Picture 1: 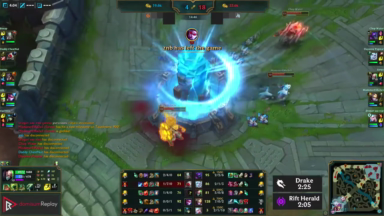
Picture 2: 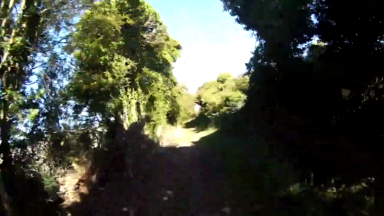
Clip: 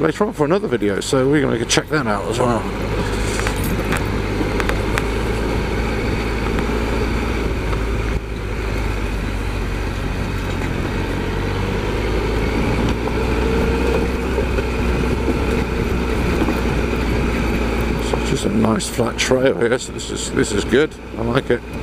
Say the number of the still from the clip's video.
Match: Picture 2